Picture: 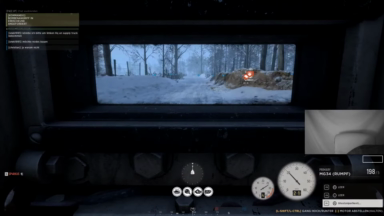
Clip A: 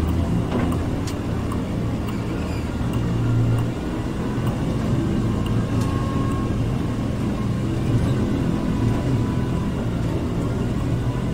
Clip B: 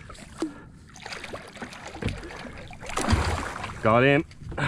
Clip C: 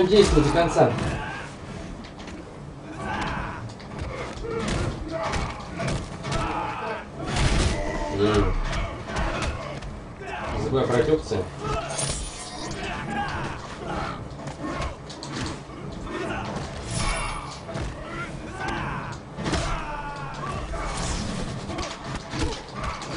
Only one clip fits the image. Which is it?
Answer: A